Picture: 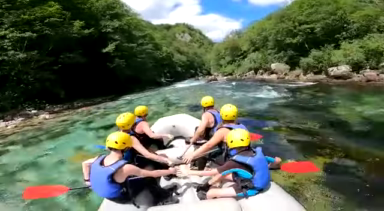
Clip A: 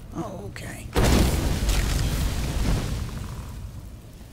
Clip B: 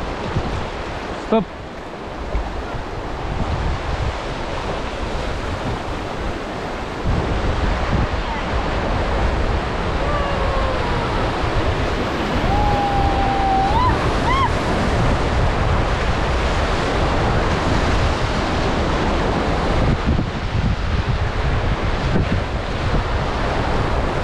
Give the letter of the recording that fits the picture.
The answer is B